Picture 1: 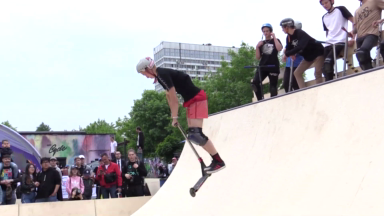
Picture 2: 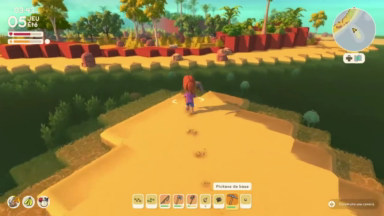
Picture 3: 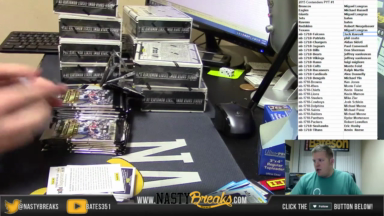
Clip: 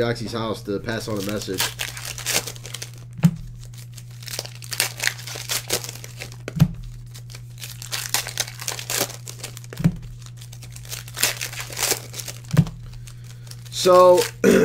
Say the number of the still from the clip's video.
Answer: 3